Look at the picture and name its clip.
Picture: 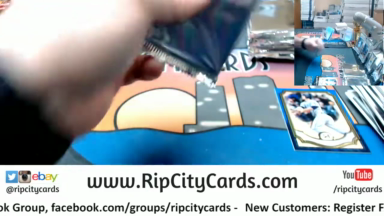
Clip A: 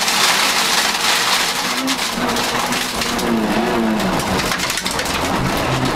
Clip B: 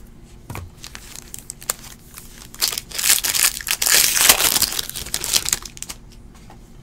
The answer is B